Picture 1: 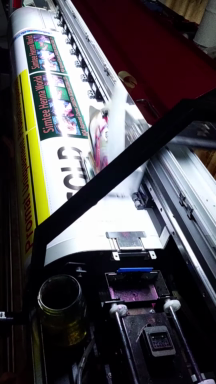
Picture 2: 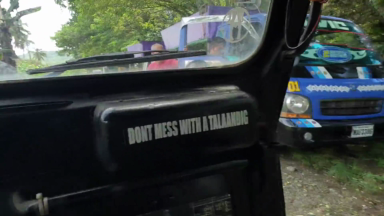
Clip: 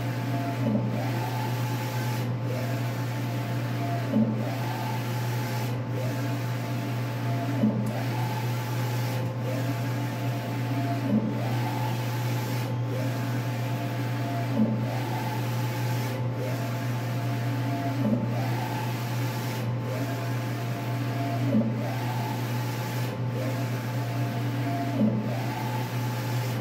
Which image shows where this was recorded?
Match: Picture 1